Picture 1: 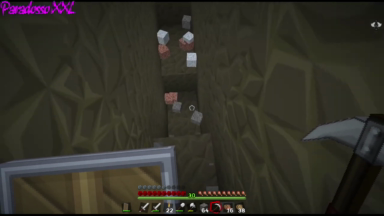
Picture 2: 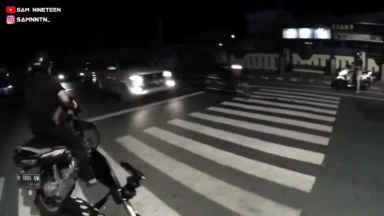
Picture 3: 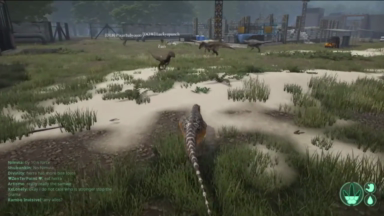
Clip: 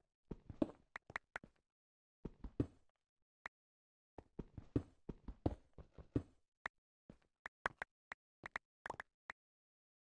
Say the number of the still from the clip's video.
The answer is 1